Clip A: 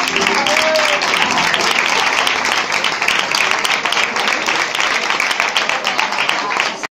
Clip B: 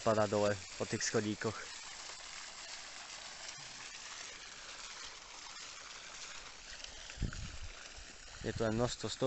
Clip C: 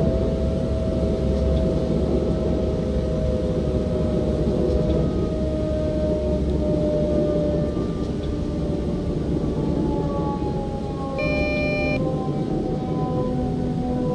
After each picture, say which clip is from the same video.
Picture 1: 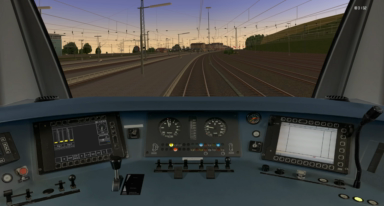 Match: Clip C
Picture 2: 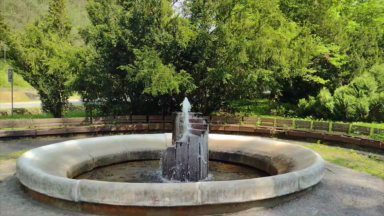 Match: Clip B